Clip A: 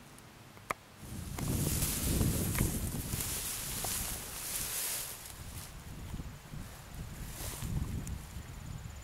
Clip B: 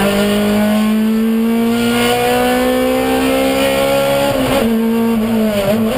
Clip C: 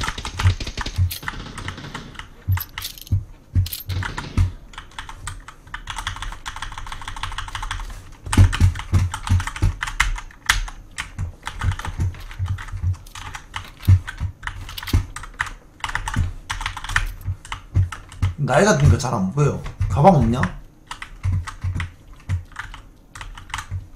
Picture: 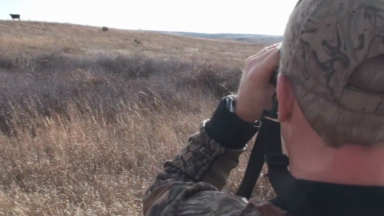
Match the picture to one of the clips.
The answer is A